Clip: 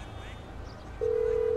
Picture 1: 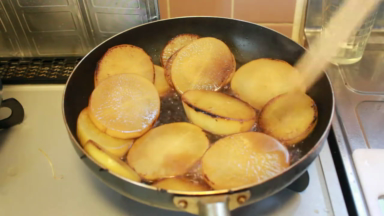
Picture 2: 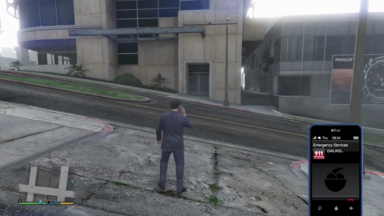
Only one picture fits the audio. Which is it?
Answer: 2